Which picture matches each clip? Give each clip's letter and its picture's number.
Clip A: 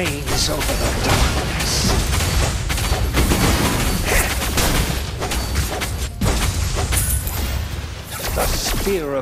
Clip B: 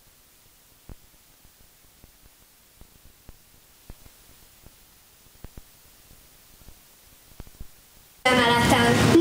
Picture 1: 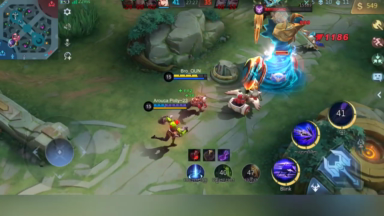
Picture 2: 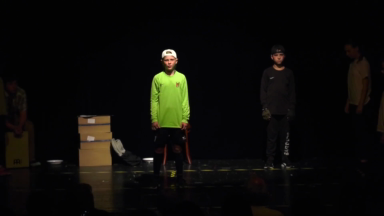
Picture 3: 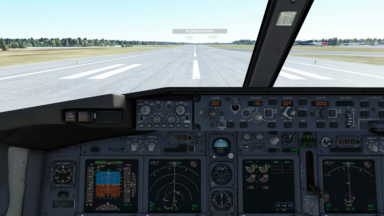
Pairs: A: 1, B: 2